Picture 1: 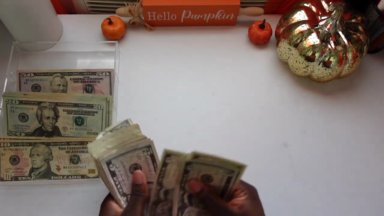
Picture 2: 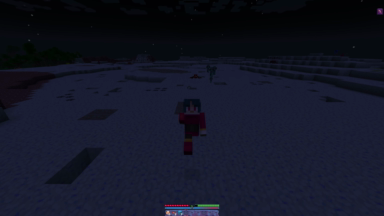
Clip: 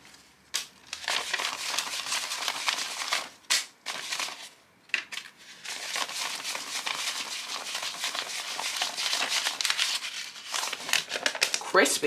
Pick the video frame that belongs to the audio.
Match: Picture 1